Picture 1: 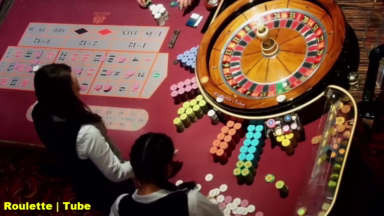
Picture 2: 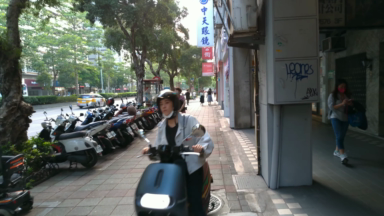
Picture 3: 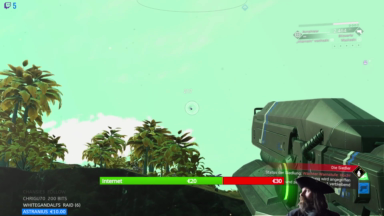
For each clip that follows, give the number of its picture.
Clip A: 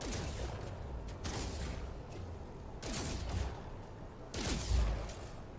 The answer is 3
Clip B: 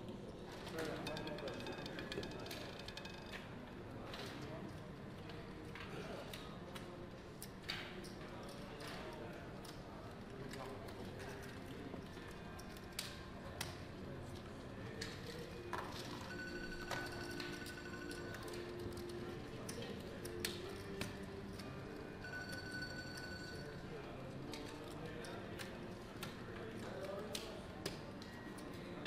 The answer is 1